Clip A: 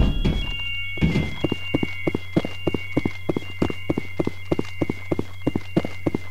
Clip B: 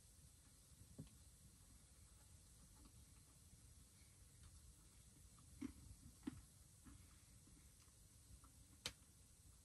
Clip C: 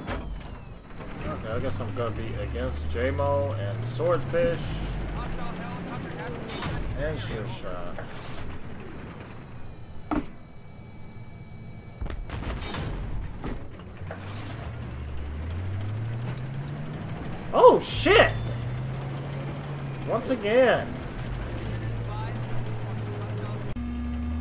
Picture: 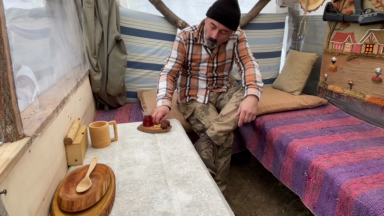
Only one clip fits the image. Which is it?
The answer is B